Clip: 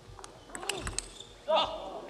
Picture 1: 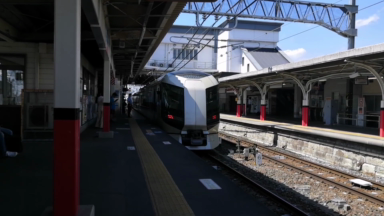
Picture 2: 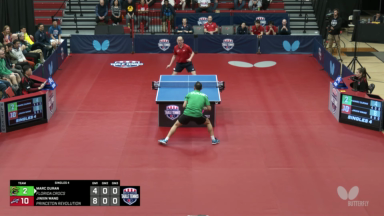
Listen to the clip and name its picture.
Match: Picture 2